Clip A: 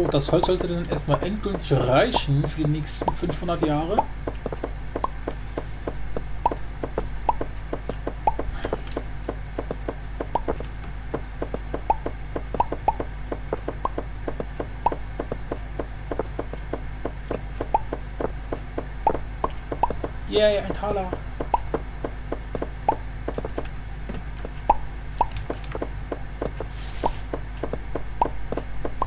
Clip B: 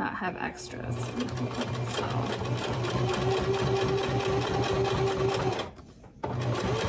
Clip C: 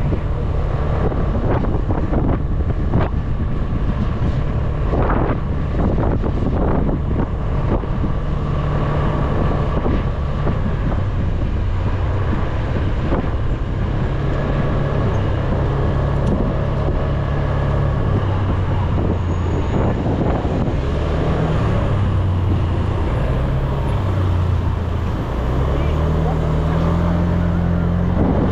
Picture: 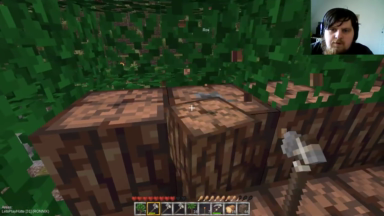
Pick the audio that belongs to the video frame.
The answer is A